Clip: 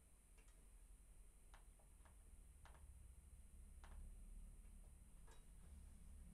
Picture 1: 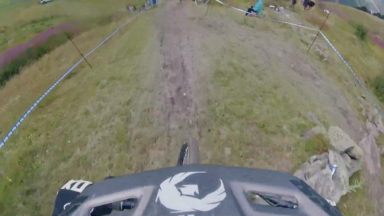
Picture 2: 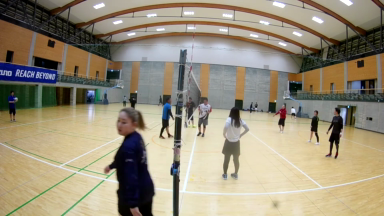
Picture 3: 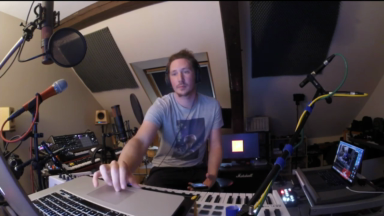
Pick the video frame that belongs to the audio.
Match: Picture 3